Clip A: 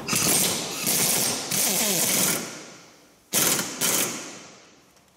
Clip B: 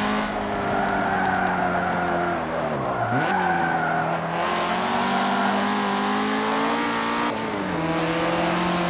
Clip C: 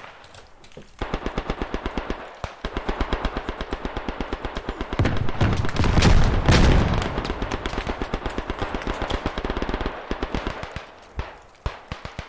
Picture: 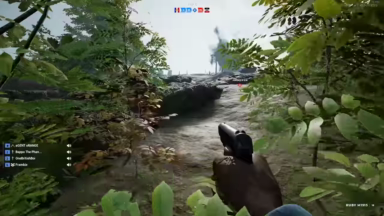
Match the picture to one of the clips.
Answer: C